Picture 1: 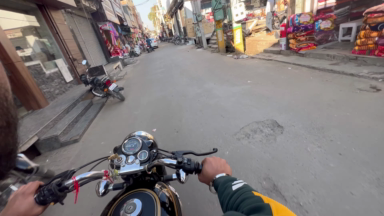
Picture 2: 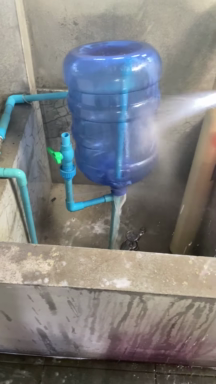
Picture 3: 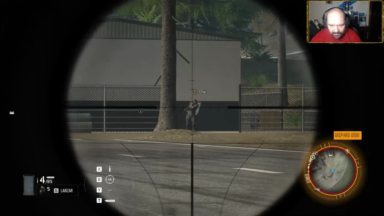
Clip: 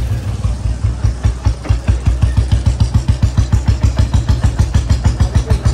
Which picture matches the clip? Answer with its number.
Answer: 1